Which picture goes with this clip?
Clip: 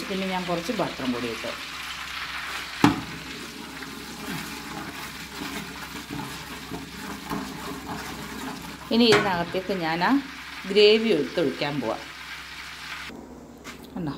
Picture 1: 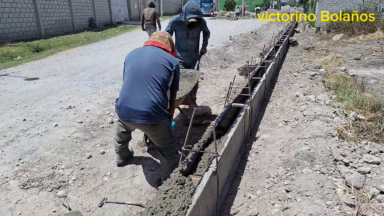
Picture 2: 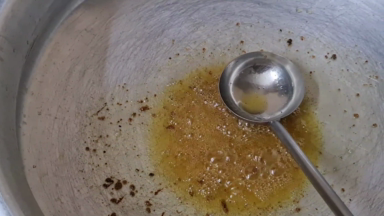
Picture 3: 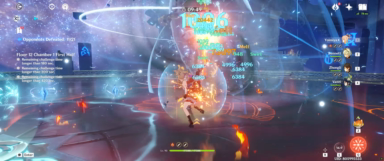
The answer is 2